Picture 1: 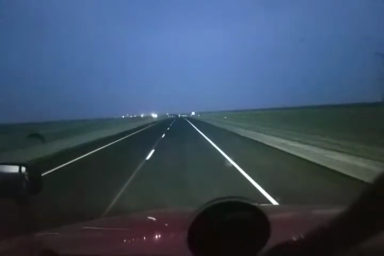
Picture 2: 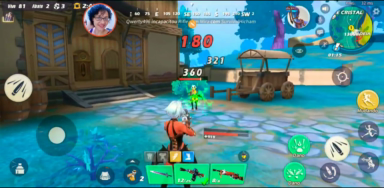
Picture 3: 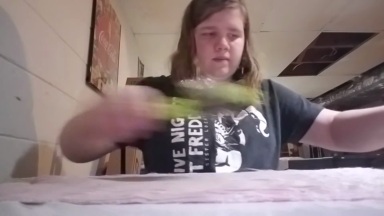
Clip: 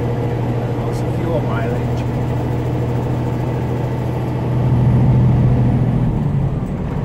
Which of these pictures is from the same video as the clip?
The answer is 1